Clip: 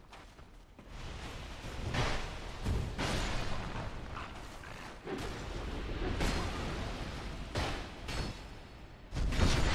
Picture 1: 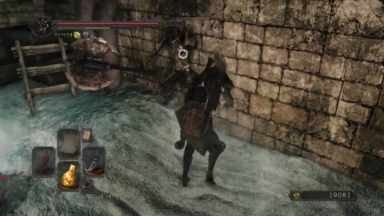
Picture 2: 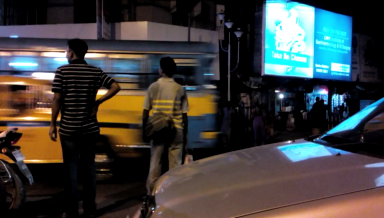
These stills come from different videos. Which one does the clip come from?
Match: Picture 1